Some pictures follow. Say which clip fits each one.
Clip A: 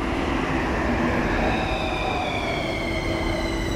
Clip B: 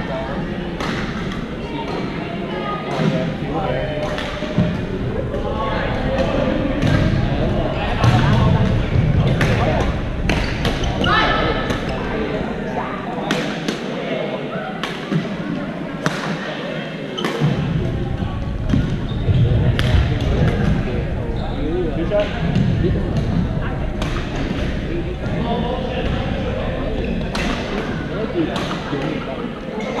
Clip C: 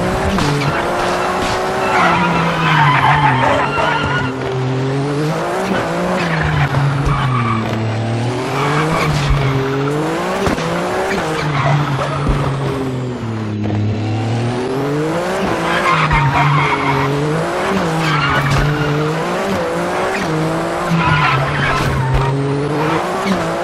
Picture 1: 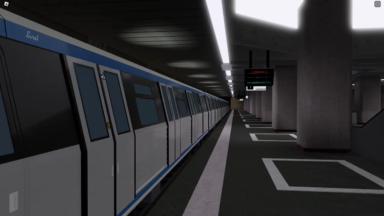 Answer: A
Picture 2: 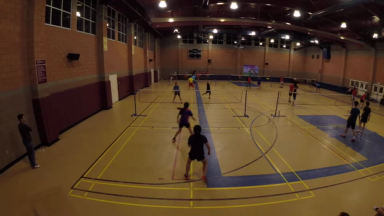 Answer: B